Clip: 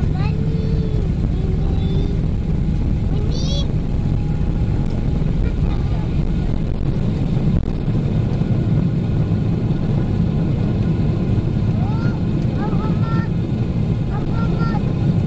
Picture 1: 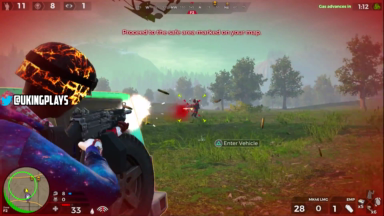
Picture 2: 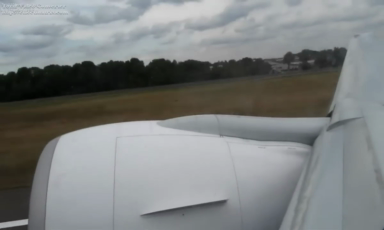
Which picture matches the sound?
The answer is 2